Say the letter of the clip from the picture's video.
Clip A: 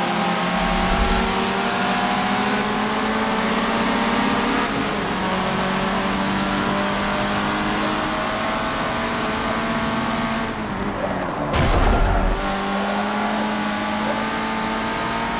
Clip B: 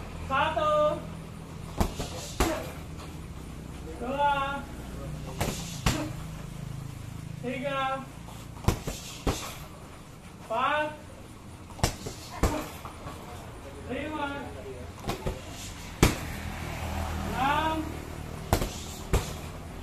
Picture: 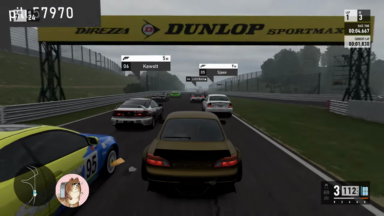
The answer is A